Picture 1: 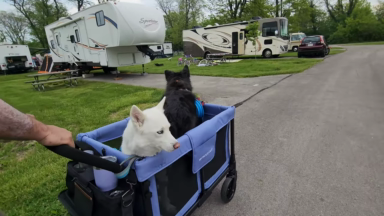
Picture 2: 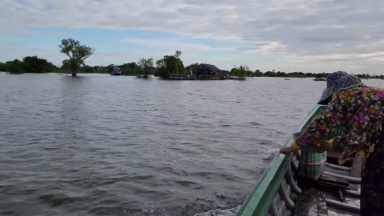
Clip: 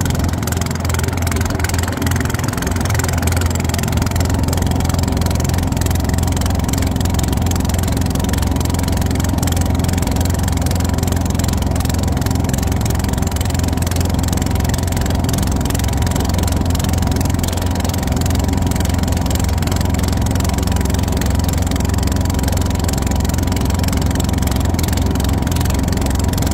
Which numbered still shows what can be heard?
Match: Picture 2